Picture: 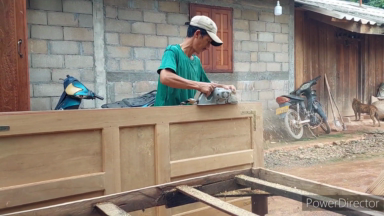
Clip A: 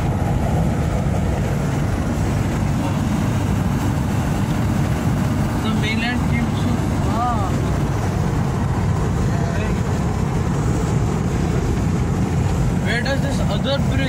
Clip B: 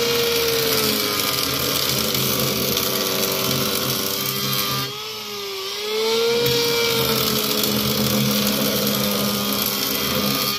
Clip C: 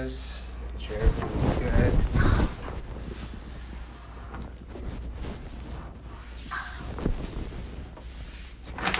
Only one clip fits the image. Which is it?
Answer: B